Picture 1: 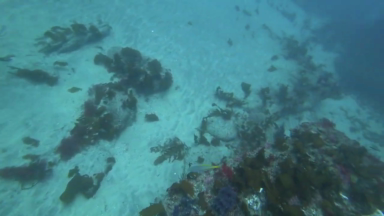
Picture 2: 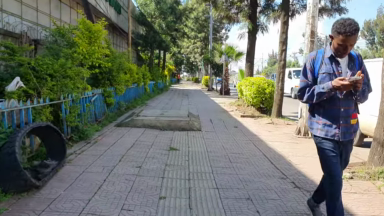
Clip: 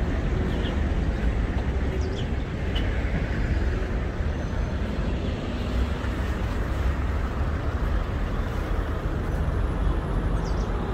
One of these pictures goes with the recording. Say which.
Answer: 2